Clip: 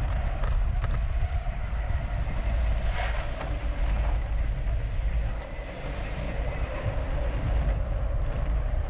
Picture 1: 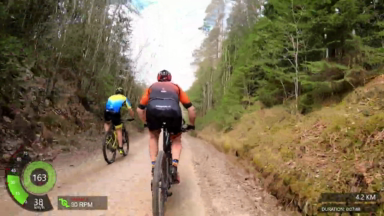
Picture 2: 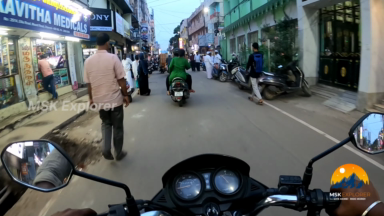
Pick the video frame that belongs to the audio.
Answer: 1